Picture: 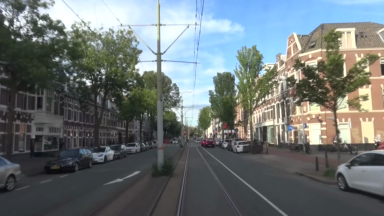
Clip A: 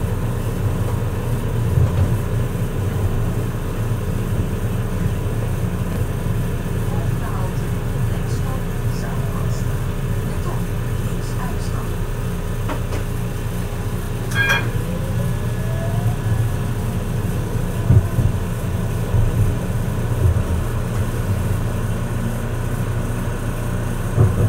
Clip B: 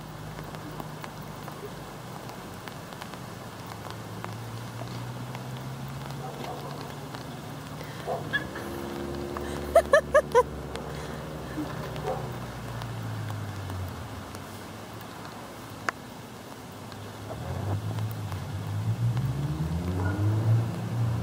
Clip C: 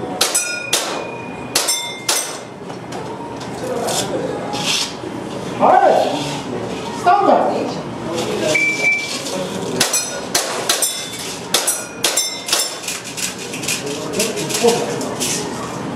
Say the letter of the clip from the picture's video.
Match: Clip A